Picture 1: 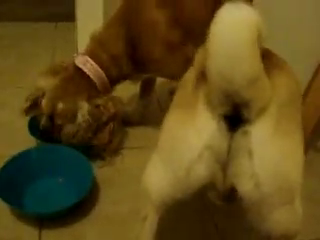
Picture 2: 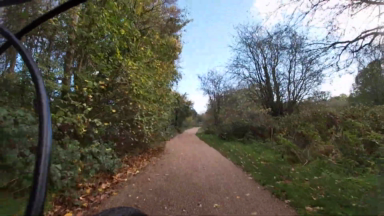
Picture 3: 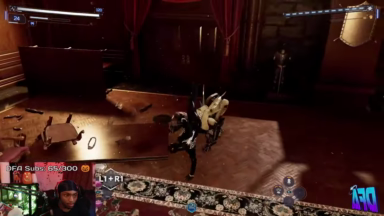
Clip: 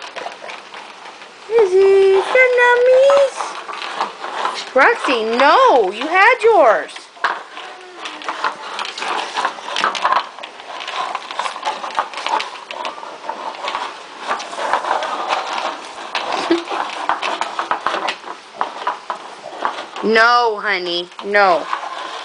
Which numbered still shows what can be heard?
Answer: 1